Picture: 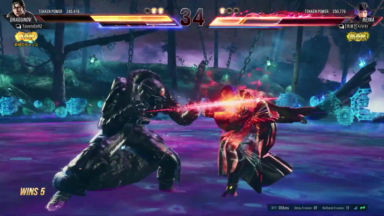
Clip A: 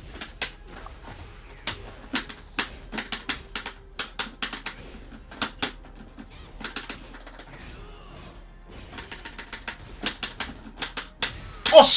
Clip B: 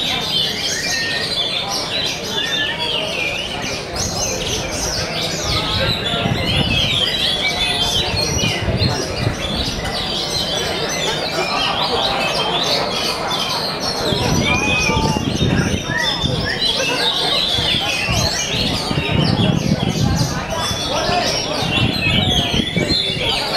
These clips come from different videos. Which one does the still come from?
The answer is A